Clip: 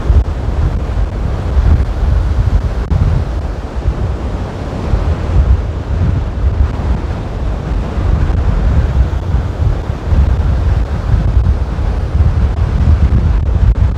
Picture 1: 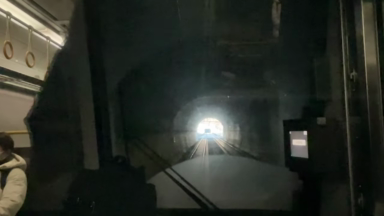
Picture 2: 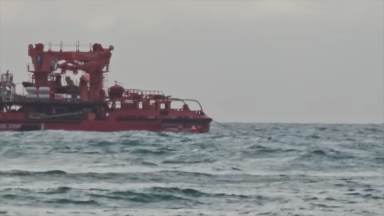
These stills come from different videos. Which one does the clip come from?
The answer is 2